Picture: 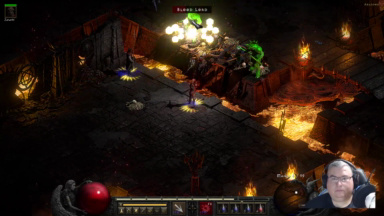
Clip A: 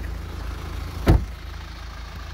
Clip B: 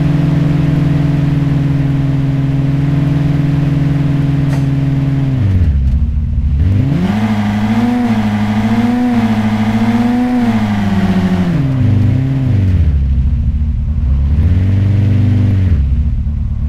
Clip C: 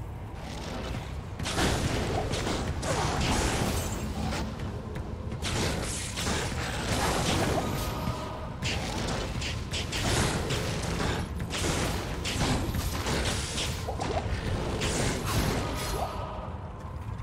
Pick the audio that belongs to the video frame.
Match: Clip C